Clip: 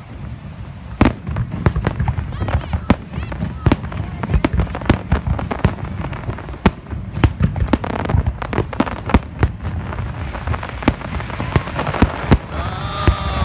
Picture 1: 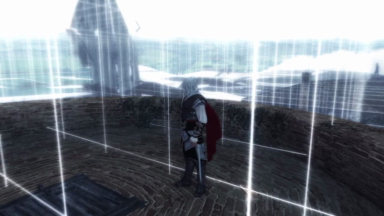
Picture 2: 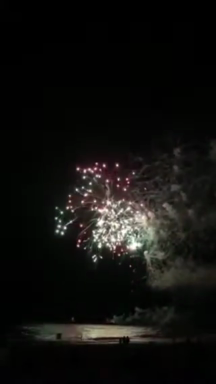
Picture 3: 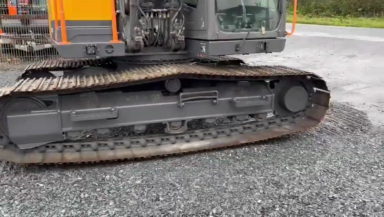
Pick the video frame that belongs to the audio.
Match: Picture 2